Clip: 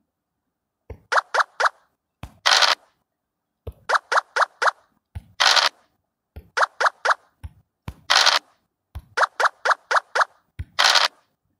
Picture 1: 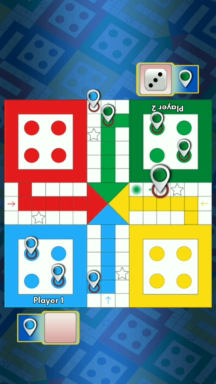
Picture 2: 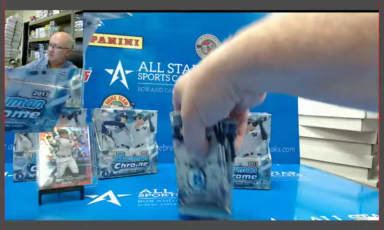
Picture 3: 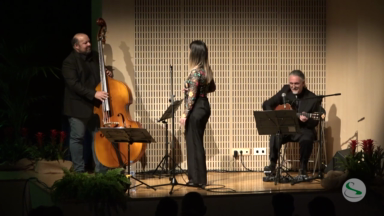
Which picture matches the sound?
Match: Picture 1